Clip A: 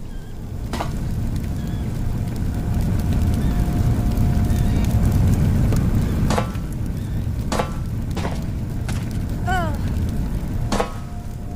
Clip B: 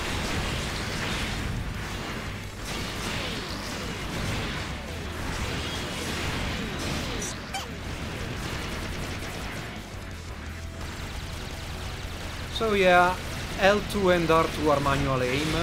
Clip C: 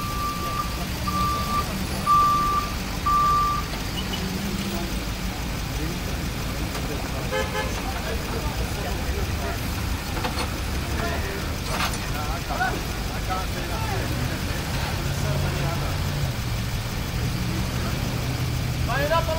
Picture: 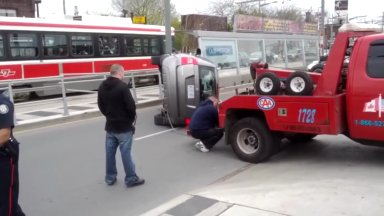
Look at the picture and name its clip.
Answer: C